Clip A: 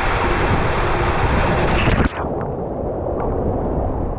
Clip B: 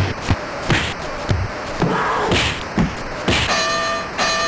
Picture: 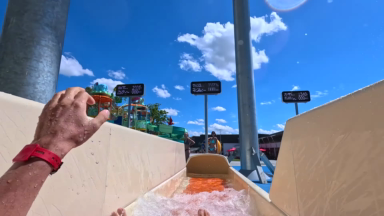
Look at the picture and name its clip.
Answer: A